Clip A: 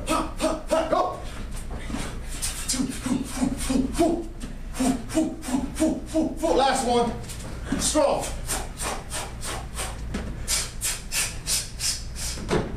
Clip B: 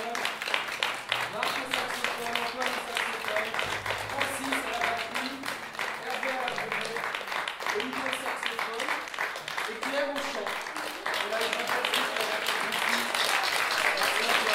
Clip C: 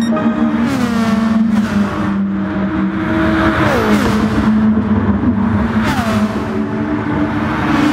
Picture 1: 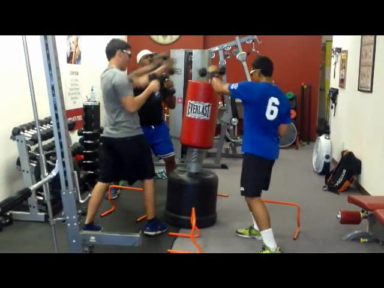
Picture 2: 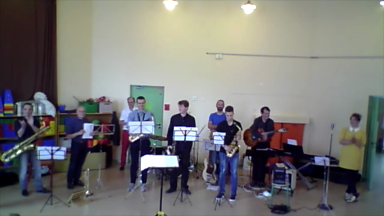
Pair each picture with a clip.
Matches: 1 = A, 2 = B